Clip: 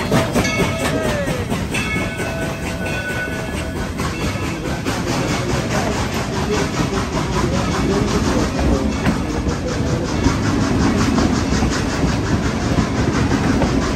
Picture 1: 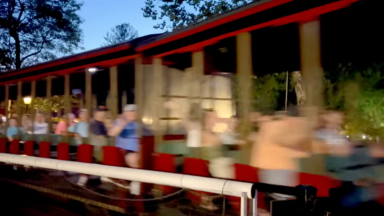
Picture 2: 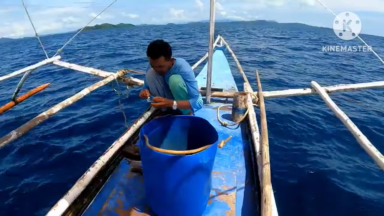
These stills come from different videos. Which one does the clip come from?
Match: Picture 1